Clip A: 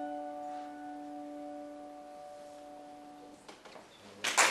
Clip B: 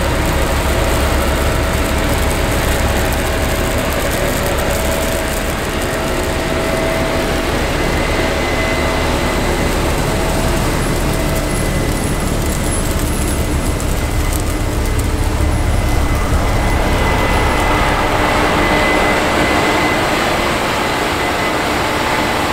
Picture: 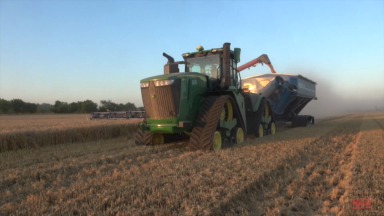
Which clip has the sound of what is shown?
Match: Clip B